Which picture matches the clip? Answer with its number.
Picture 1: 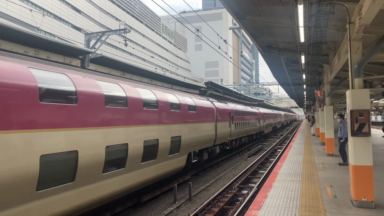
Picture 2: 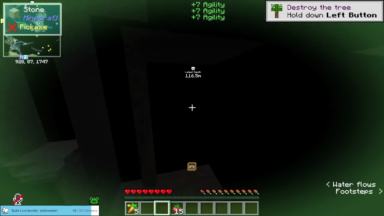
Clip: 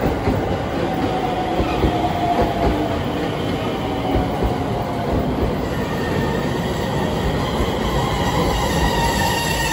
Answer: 1